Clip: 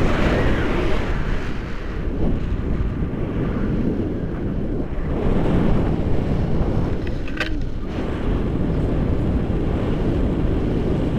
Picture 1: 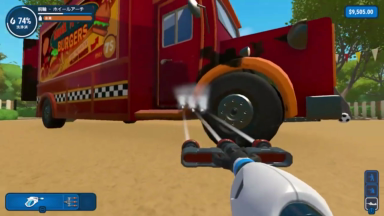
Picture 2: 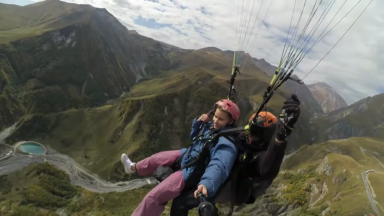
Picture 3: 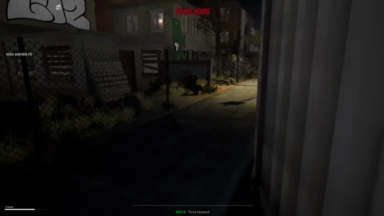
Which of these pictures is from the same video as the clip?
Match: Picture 2